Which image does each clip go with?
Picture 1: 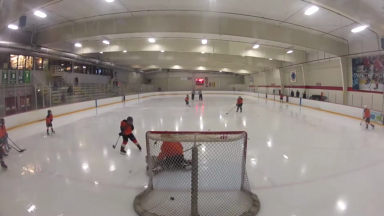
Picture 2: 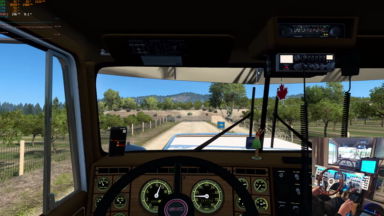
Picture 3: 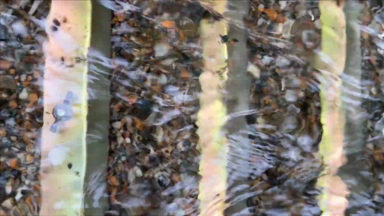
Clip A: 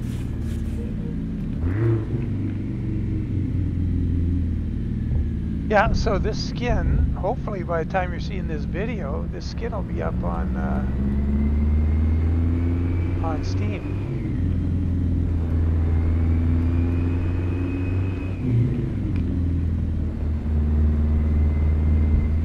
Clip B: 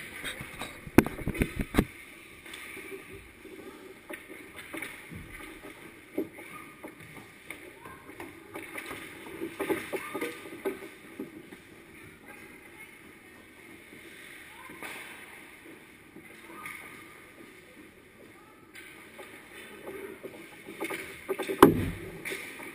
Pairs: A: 2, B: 1